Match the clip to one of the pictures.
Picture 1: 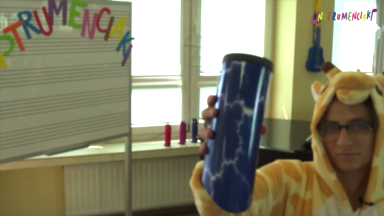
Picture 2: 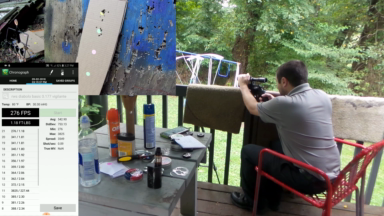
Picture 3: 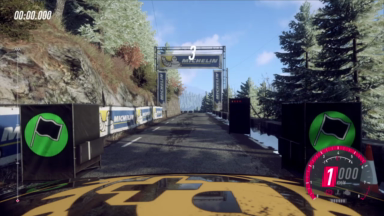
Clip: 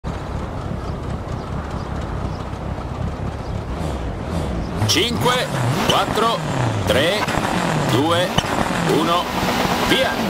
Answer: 3